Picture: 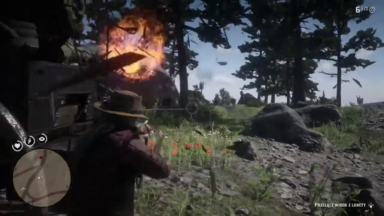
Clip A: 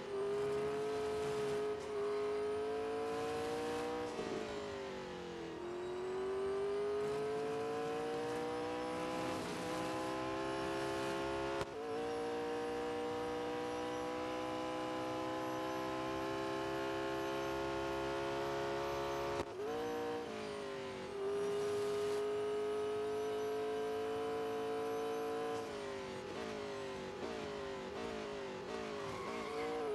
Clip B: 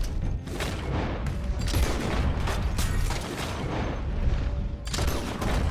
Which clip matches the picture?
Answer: B